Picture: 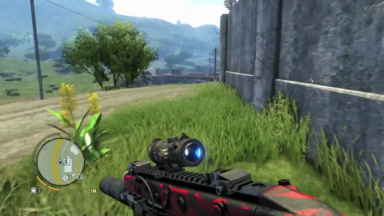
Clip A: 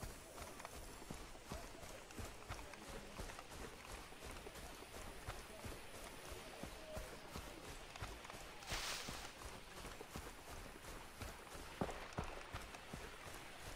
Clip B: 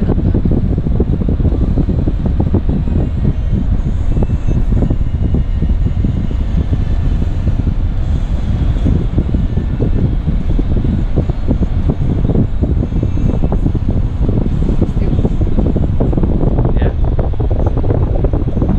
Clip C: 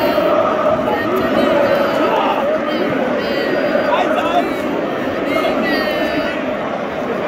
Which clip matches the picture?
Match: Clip A